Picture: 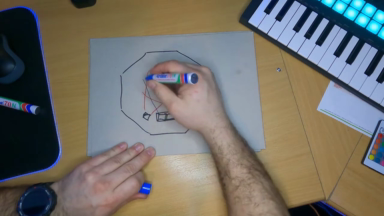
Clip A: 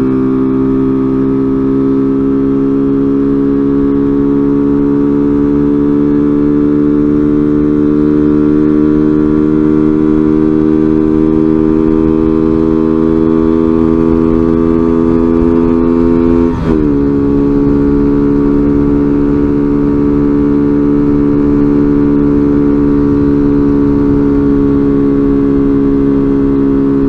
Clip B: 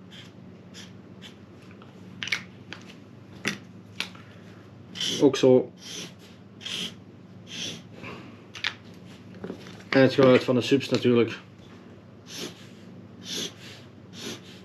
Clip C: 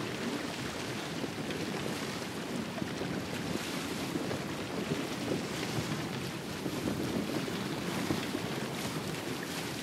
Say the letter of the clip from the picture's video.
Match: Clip B